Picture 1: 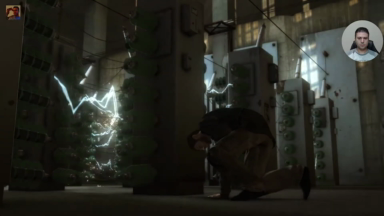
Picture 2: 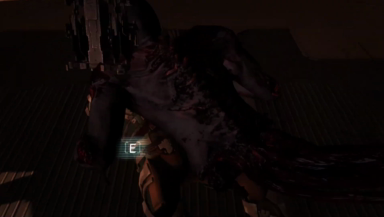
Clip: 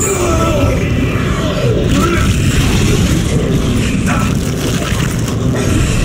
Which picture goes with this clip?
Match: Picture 2